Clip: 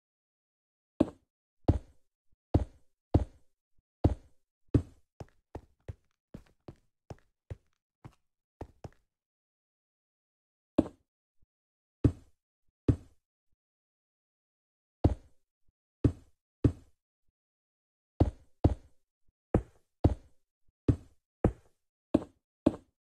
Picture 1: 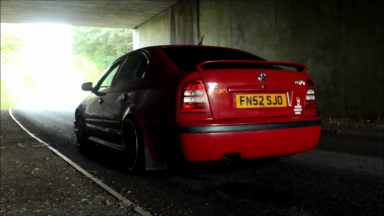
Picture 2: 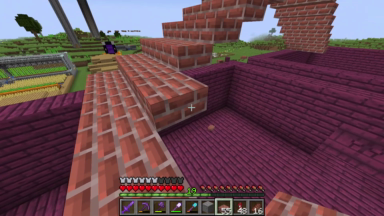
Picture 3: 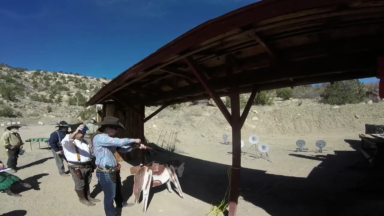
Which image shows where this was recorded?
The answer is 2